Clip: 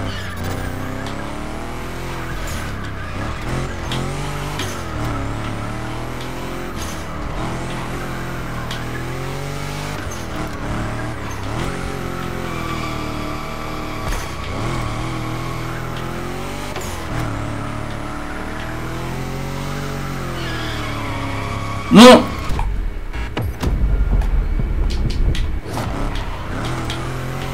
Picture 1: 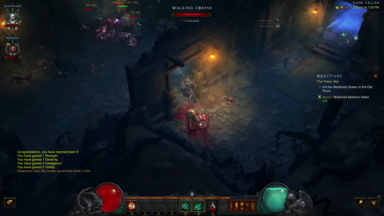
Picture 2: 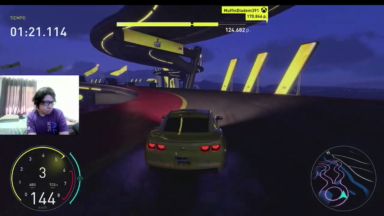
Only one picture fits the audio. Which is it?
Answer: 2